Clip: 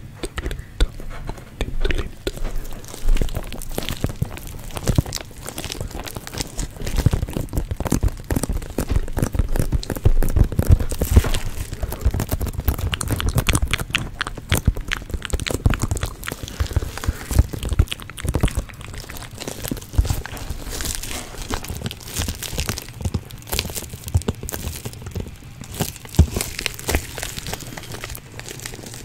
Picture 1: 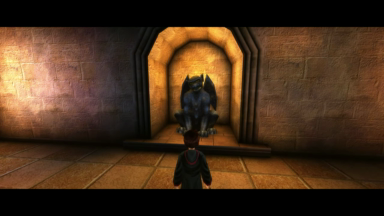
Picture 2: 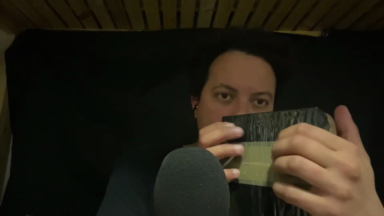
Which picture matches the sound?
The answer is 2